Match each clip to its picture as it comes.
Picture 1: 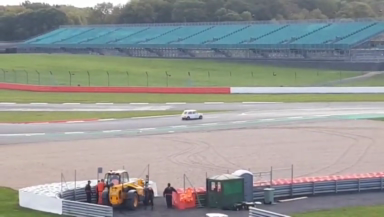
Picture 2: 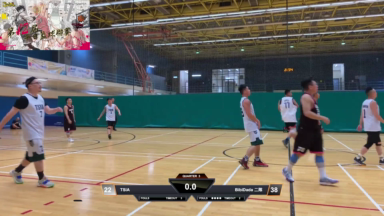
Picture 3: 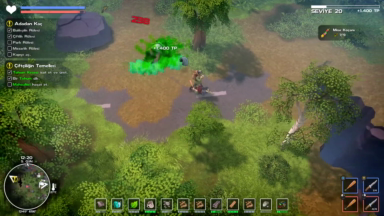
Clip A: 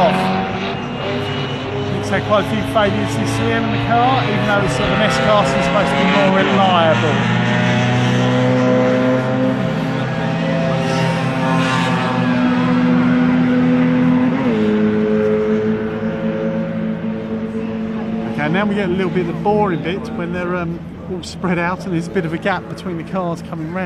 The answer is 1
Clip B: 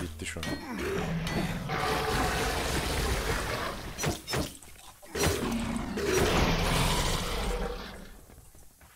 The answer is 3